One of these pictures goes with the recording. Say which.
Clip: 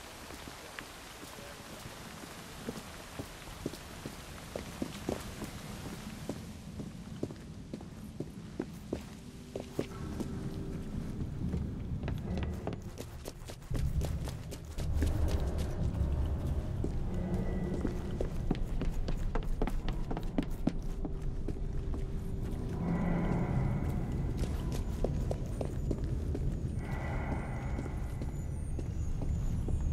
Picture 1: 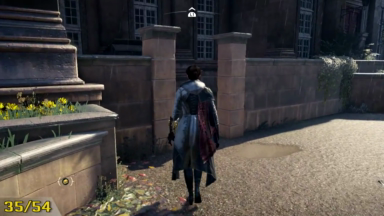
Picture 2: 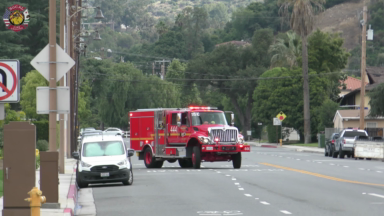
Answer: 1